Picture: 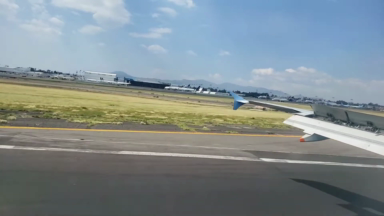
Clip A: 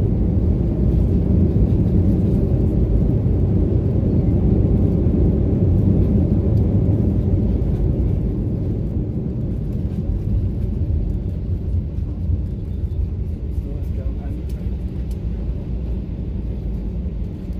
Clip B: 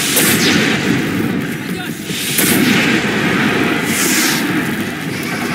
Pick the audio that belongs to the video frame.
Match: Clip A